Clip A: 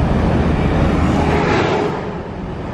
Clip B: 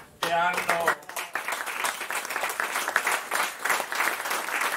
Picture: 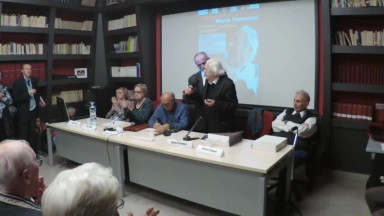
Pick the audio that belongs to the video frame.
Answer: B